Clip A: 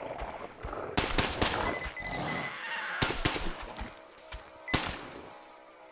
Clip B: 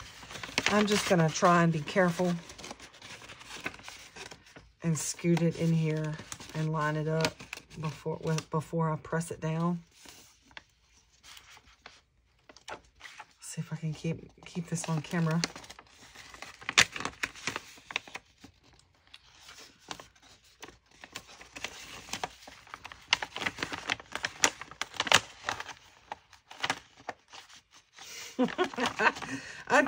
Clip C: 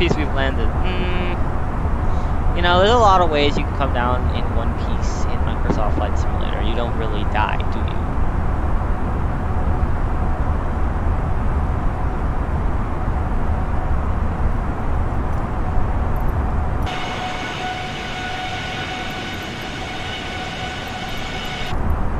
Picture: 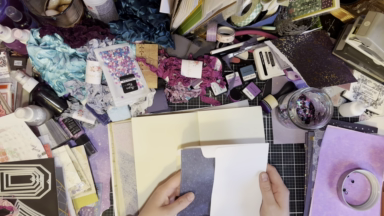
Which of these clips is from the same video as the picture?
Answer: B